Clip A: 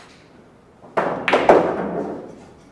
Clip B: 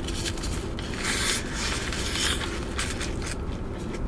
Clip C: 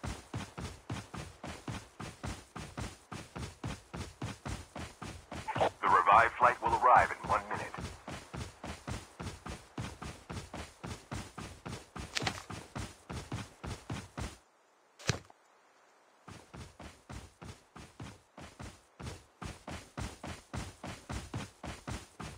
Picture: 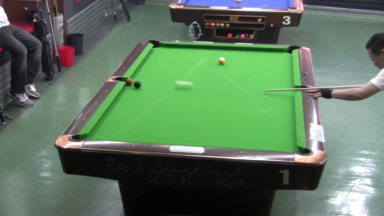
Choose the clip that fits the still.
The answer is A